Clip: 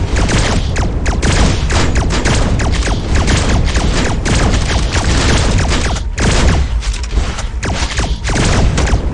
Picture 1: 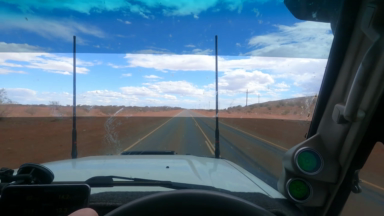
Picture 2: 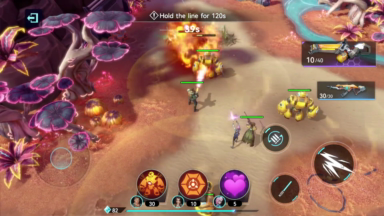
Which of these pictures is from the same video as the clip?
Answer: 2